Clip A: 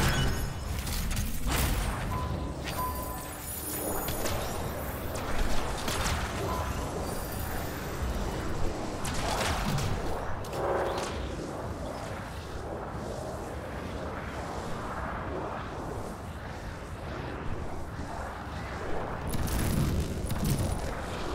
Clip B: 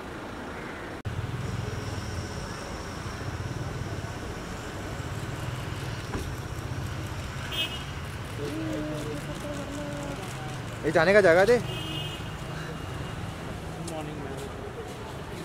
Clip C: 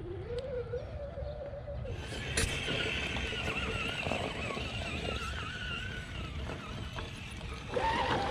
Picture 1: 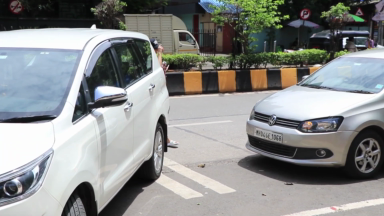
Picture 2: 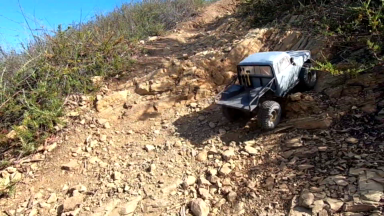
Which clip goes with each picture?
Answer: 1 B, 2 C